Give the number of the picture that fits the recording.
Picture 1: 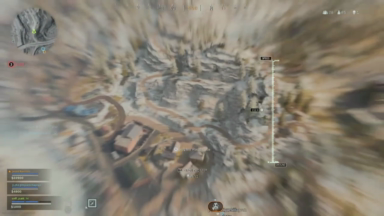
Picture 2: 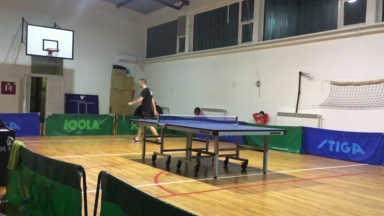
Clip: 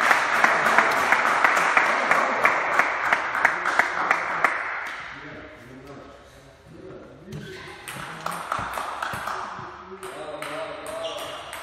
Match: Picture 2